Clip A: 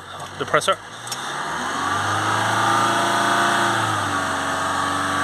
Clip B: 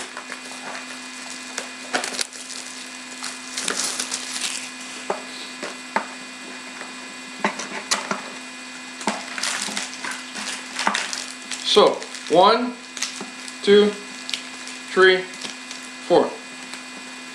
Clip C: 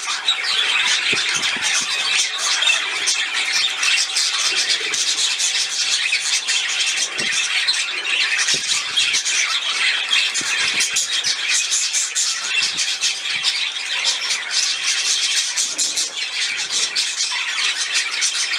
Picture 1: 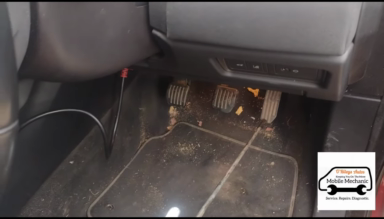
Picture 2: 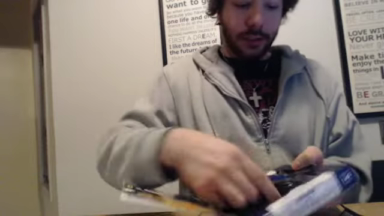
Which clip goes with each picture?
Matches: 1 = A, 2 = B